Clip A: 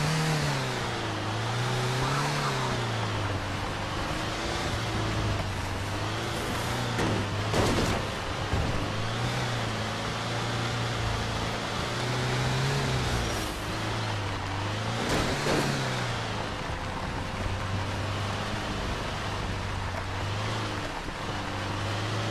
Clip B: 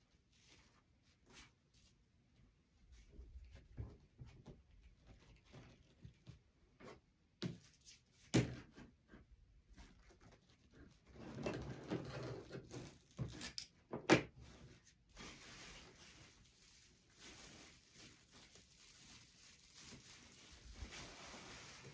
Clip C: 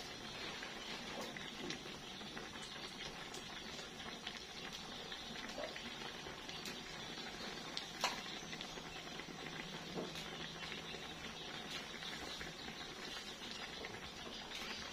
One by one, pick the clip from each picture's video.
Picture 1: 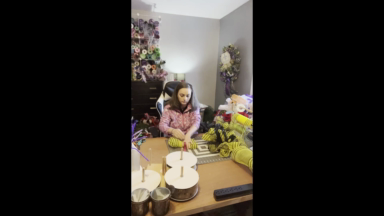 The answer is B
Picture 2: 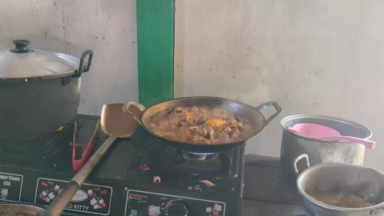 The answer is C